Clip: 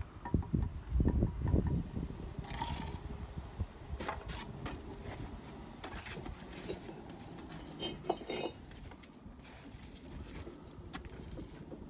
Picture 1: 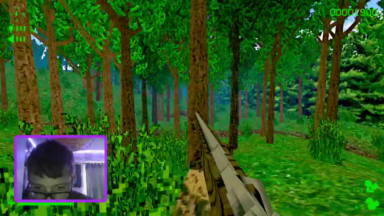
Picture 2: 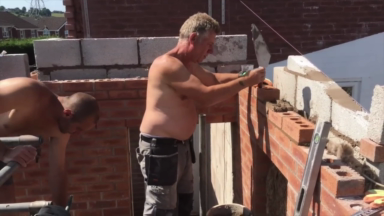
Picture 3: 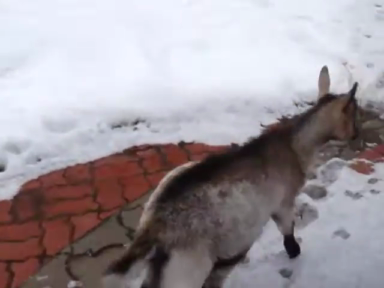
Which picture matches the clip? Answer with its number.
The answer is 2